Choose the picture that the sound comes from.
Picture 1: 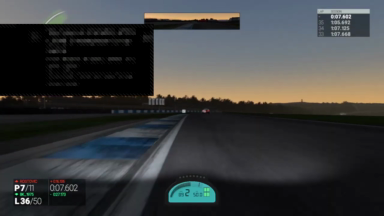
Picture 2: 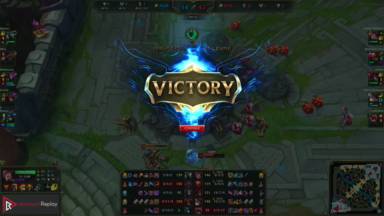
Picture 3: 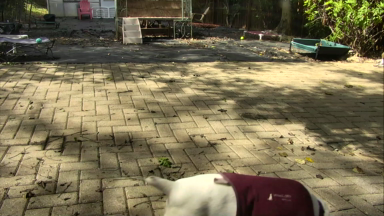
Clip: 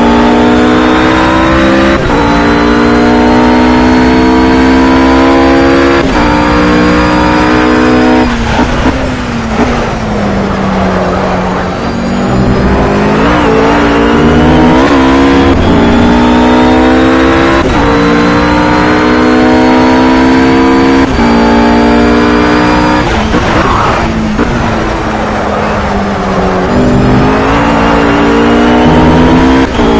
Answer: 1